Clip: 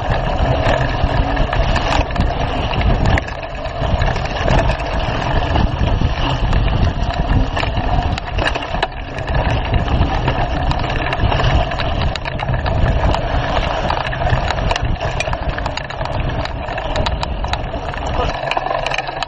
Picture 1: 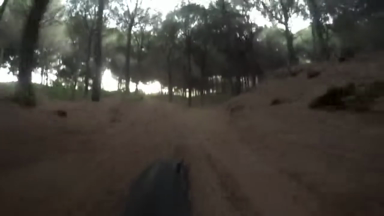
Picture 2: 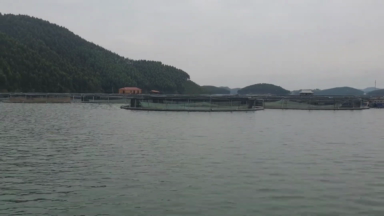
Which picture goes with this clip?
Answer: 1